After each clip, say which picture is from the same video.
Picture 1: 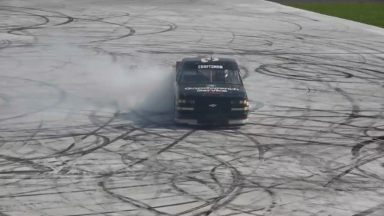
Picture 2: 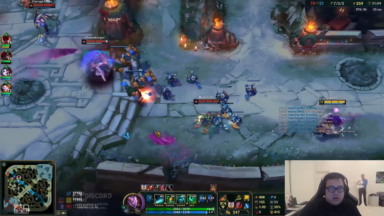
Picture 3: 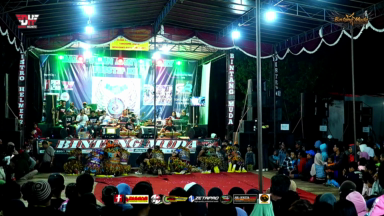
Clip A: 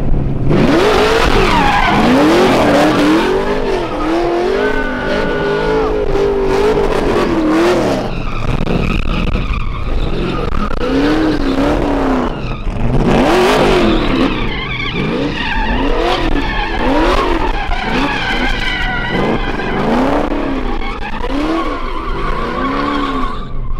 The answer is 1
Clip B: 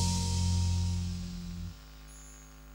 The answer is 3